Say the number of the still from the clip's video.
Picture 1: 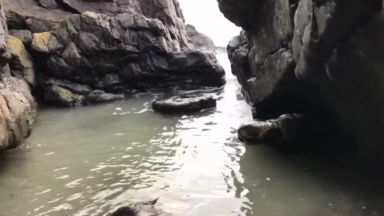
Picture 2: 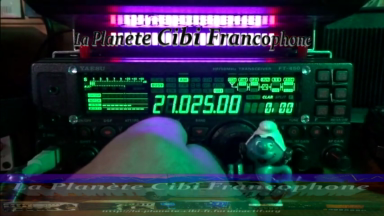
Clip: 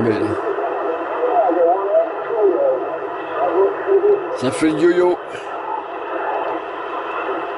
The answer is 2